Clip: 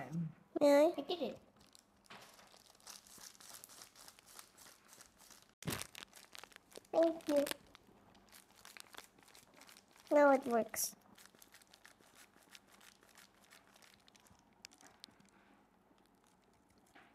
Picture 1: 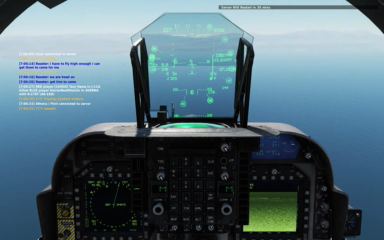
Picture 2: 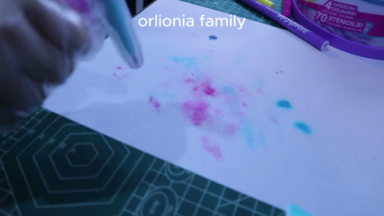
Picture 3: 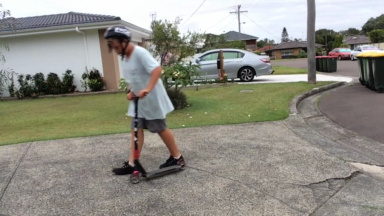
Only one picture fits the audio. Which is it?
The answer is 2